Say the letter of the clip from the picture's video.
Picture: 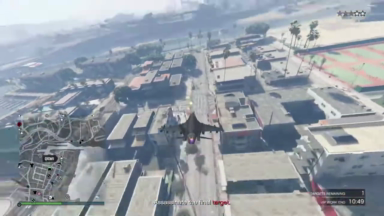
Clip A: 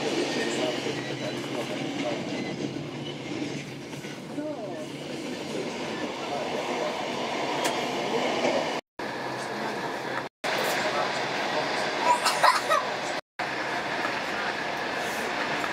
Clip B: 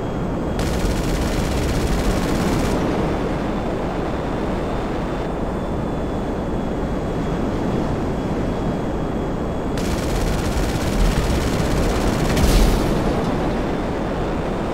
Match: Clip B